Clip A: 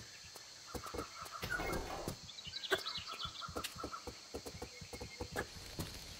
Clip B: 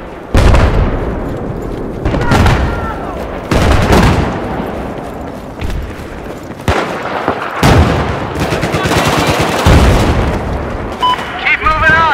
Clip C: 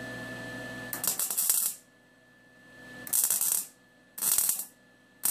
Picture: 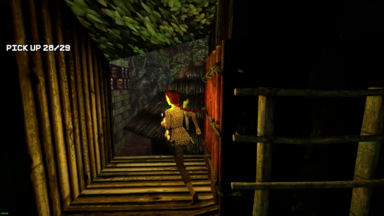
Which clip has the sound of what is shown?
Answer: A